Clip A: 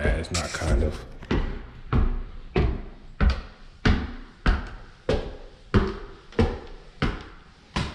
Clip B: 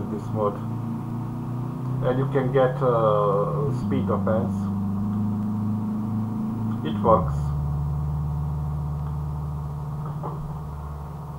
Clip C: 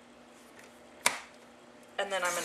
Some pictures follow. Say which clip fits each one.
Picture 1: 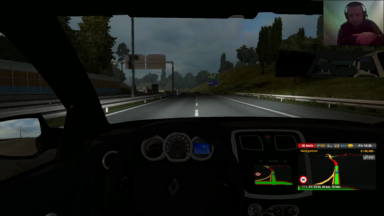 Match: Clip B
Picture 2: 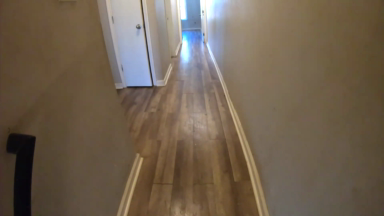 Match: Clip A